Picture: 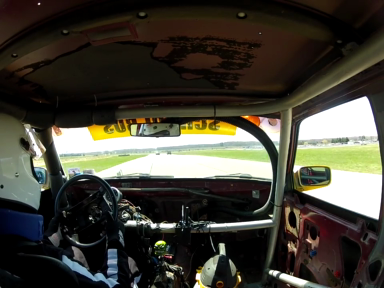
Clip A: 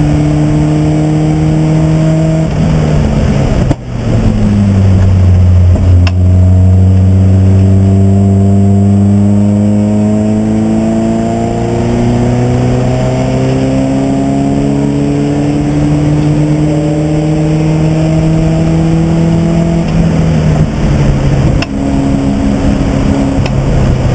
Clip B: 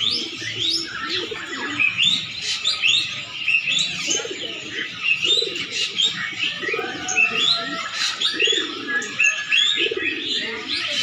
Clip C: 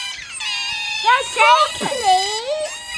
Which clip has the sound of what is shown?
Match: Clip A